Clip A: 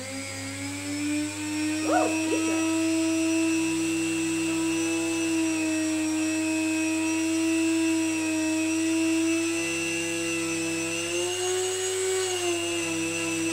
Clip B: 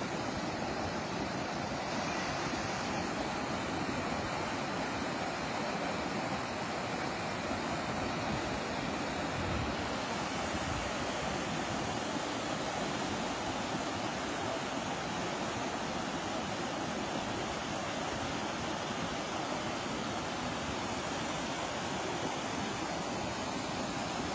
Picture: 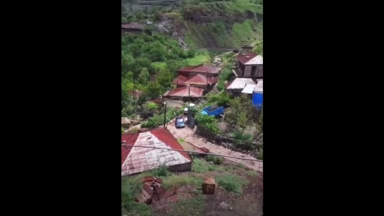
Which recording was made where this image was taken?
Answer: B